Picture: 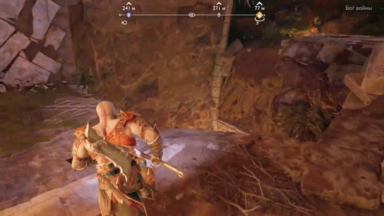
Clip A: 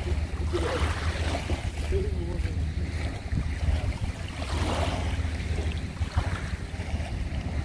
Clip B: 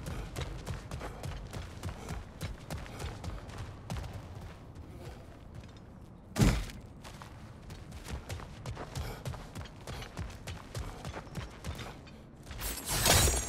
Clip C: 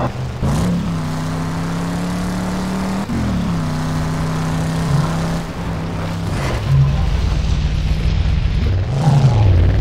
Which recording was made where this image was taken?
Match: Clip B